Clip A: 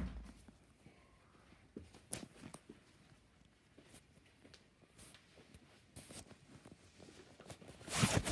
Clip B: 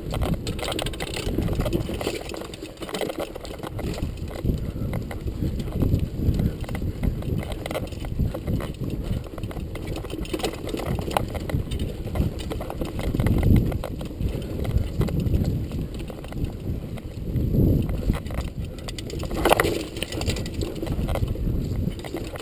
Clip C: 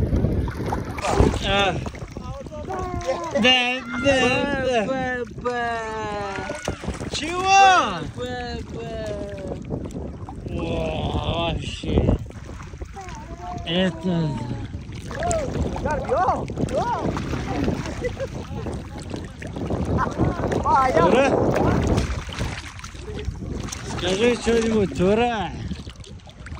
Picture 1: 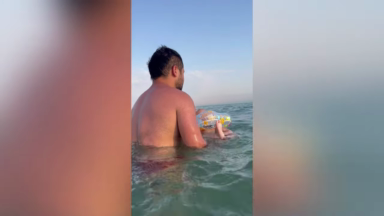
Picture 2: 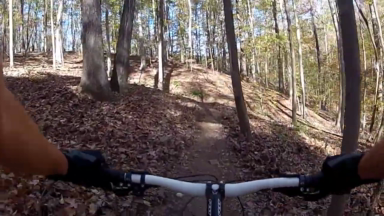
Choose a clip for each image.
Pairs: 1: C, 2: B